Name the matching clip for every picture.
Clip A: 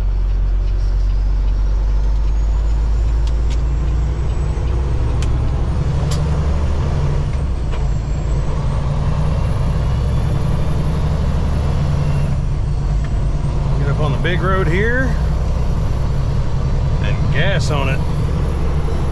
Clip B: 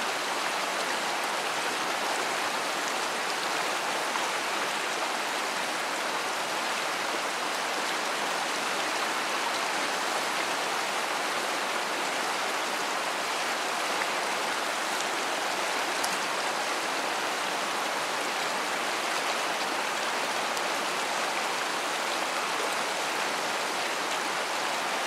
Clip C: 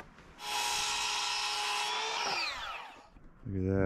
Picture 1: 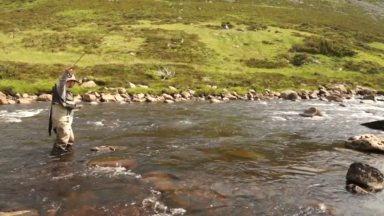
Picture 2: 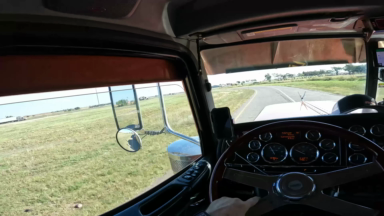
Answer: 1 B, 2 A